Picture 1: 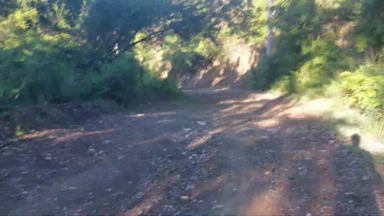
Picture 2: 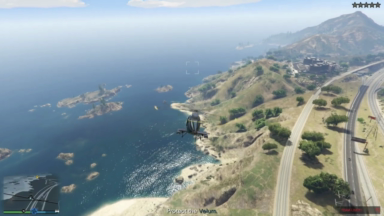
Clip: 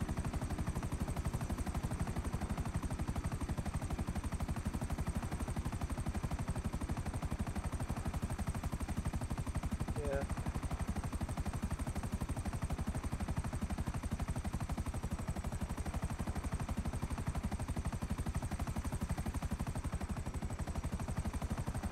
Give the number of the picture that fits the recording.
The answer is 2